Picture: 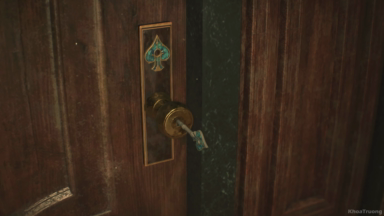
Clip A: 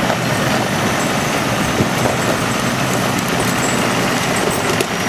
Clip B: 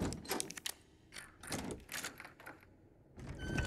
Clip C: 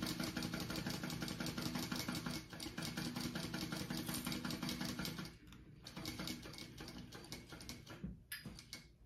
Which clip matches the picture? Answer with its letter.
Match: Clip B